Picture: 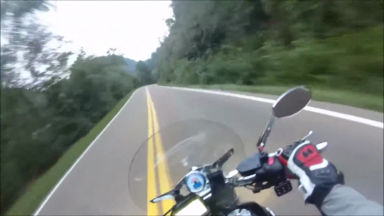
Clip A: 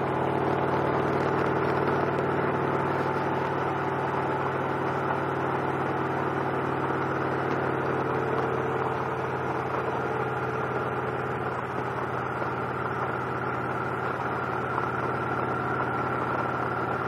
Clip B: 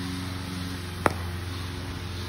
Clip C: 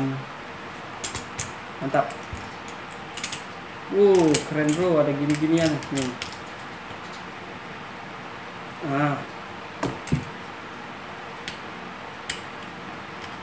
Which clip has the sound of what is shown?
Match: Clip A